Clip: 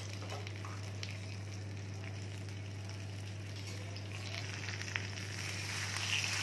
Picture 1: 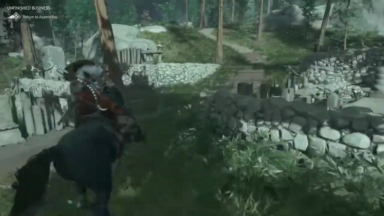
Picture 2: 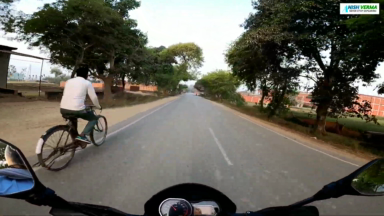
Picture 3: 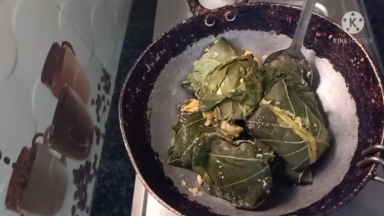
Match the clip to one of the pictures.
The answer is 3